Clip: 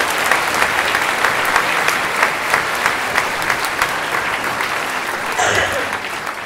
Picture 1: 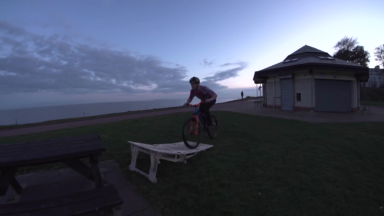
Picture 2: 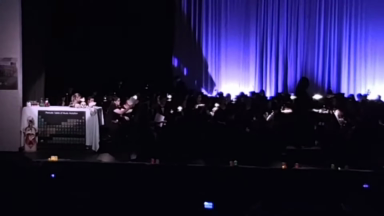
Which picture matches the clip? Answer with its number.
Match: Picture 2